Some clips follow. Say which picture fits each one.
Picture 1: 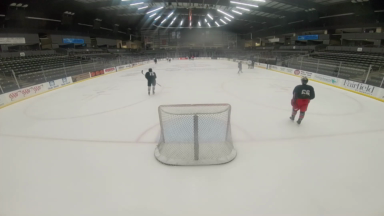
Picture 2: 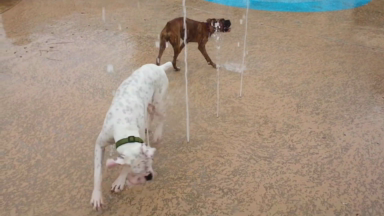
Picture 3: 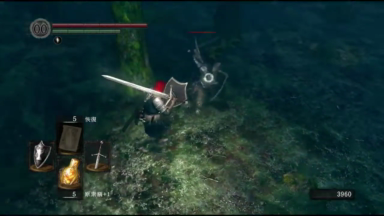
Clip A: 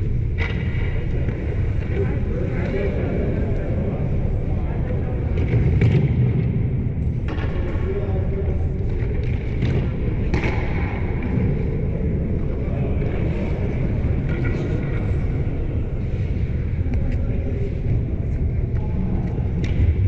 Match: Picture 1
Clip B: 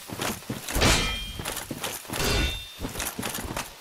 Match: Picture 3